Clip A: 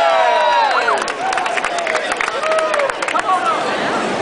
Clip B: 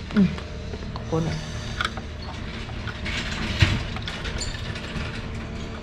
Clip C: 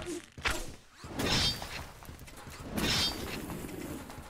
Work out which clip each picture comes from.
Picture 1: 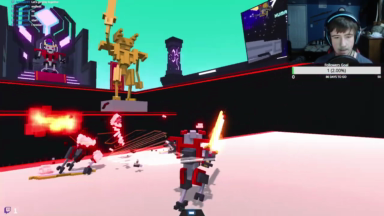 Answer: C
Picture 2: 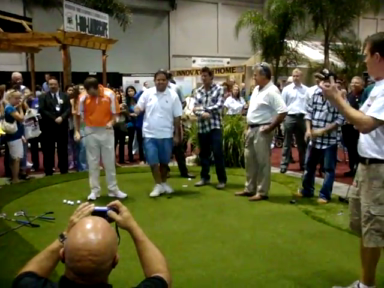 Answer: A